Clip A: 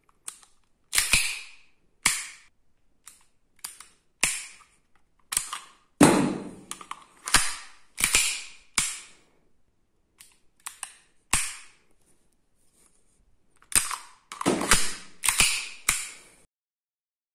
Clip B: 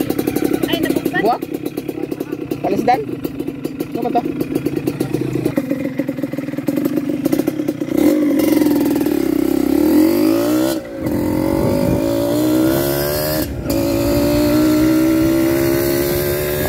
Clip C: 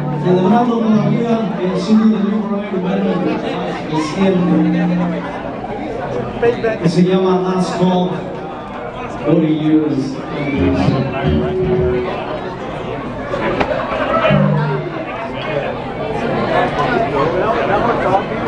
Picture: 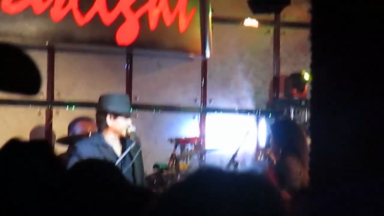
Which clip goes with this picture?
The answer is C